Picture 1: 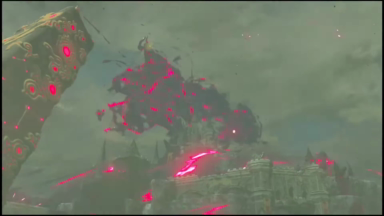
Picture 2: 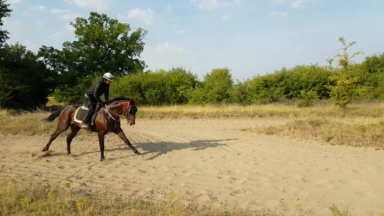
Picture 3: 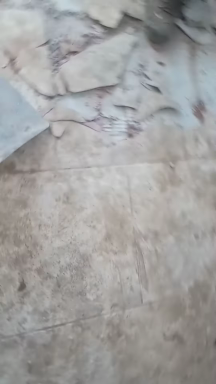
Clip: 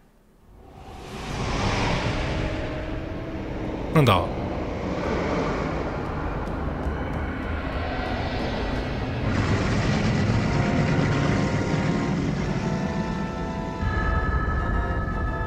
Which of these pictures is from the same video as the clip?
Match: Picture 1